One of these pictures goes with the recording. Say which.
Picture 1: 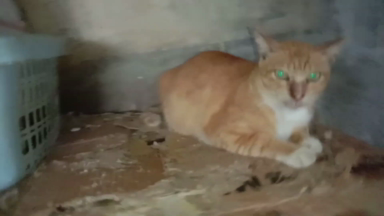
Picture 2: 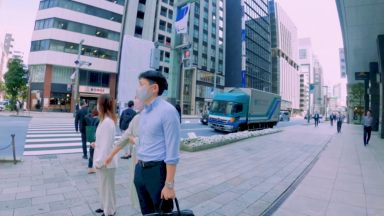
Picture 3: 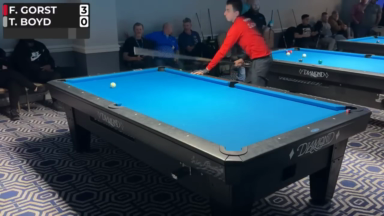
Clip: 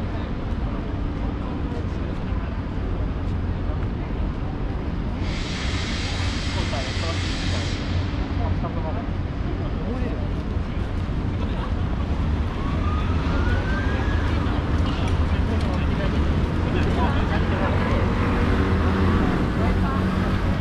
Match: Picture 2